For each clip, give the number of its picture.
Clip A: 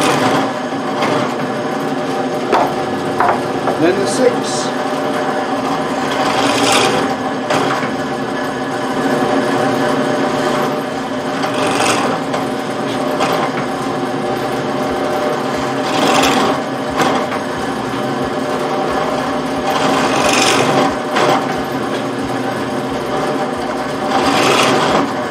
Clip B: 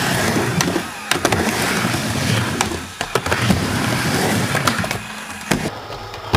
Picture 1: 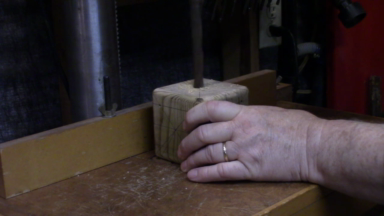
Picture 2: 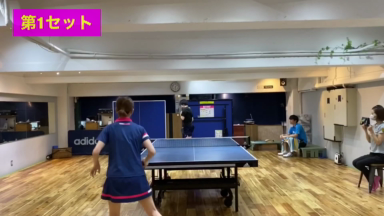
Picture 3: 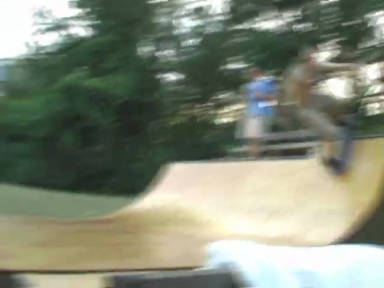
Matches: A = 1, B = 3